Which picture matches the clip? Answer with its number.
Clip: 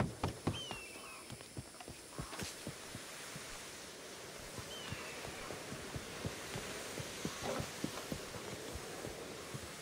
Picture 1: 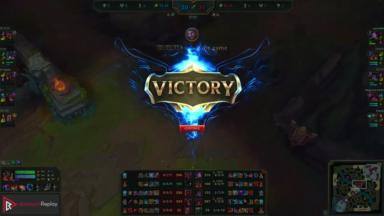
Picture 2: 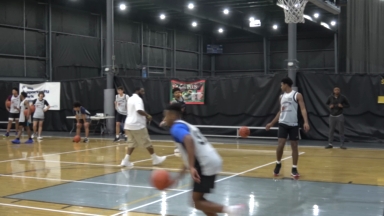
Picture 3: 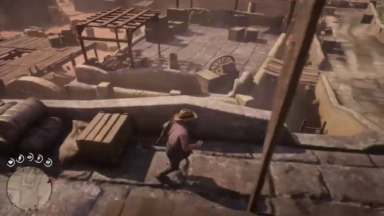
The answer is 3